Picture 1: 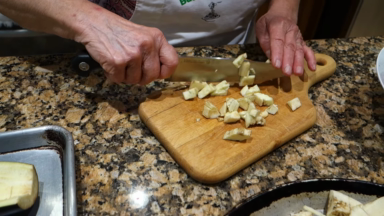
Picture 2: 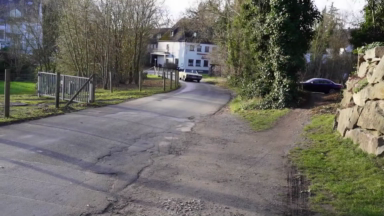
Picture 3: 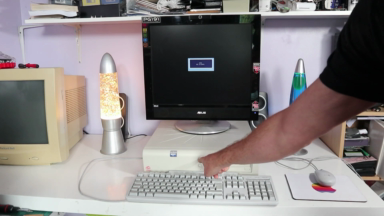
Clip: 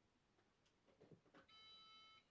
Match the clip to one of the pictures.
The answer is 3